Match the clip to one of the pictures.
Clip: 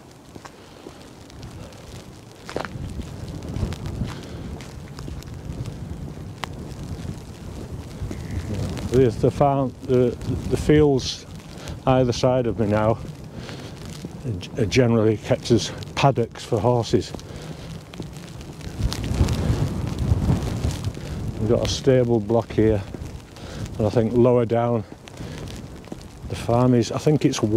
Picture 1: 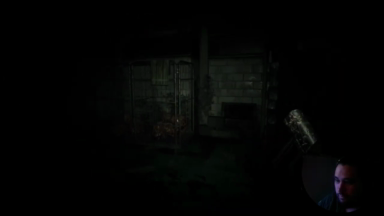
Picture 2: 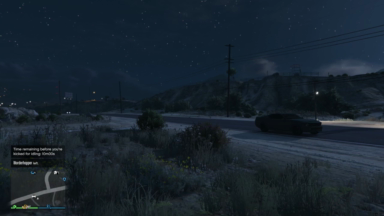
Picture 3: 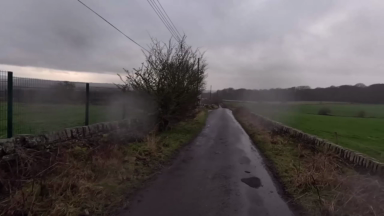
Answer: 3